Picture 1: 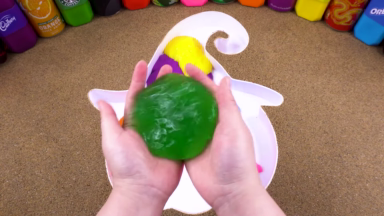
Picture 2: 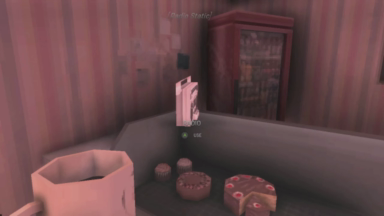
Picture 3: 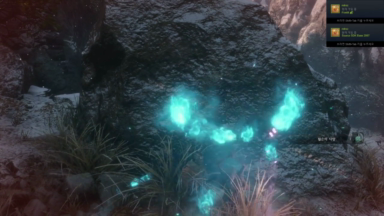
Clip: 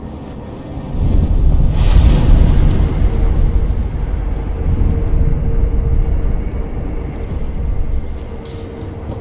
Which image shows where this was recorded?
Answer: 3